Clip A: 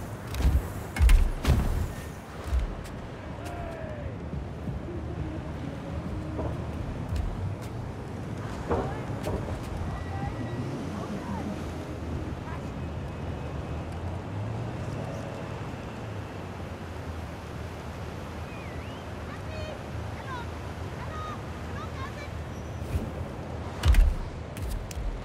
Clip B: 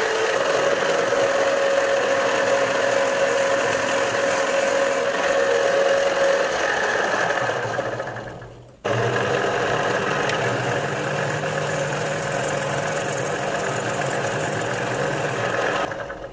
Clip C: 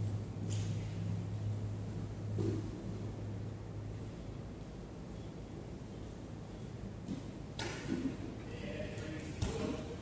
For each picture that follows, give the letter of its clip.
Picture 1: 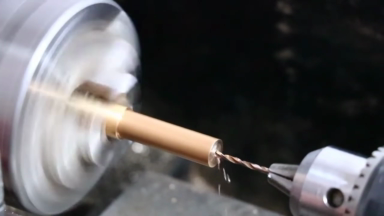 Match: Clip B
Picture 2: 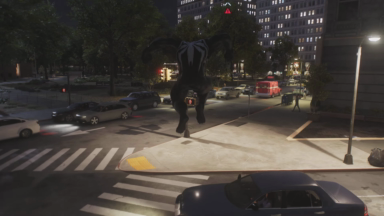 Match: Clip A